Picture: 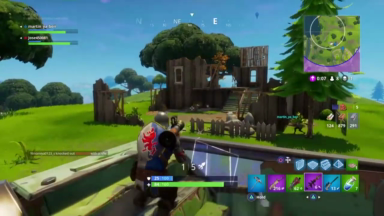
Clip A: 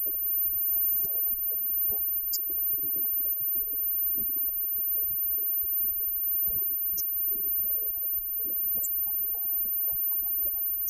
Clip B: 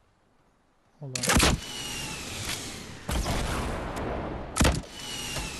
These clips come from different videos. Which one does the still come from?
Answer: B